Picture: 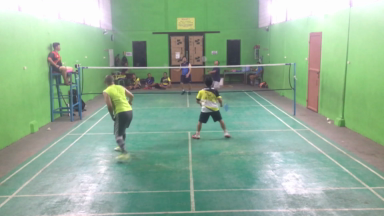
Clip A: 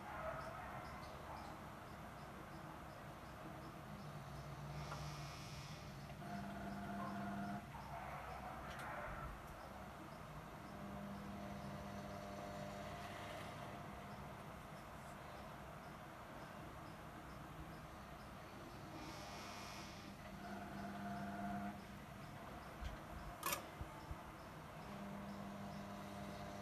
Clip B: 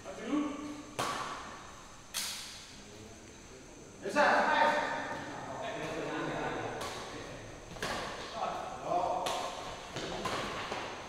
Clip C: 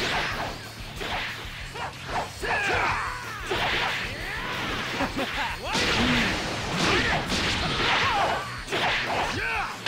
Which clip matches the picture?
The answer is B